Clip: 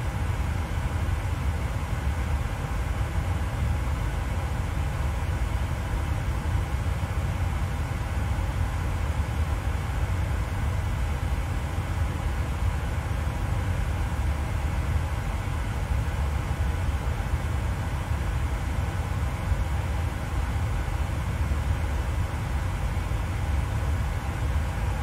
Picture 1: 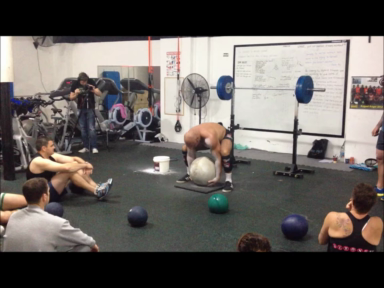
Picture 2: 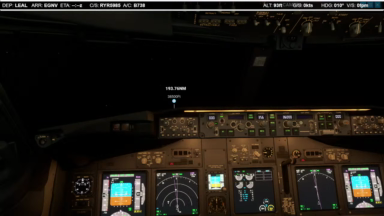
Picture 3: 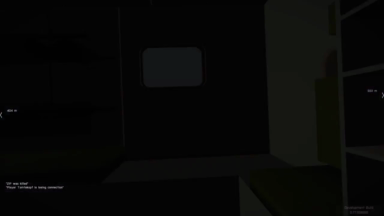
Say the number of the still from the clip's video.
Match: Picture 2